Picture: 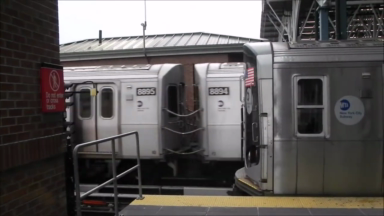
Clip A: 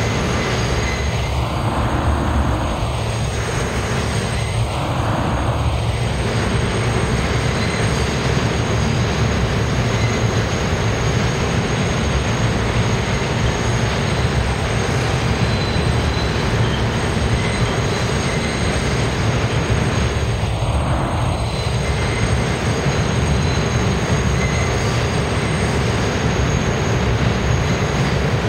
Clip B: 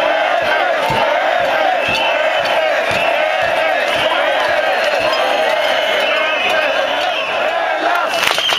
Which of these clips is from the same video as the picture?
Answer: A